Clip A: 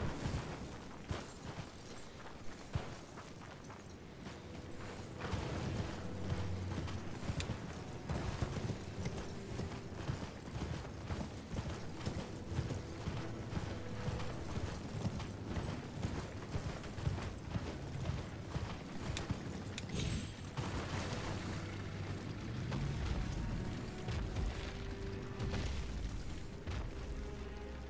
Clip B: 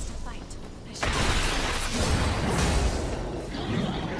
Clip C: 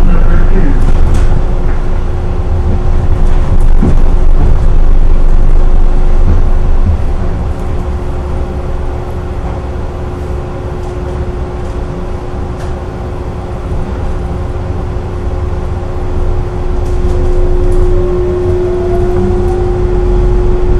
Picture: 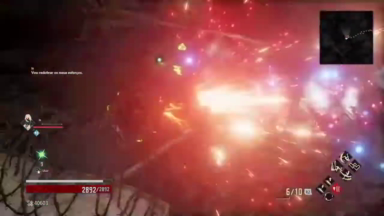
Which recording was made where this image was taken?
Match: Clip B